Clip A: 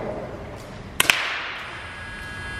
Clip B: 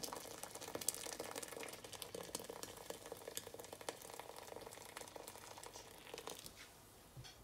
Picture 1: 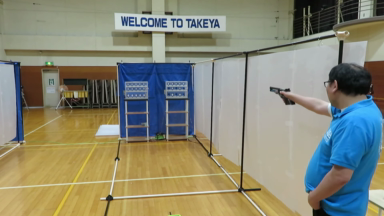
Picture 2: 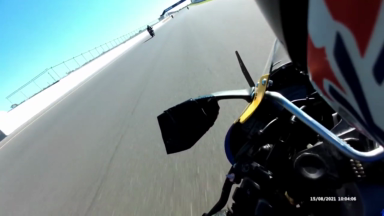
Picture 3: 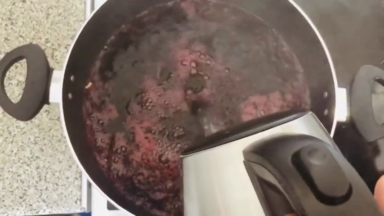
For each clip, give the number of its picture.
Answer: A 1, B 3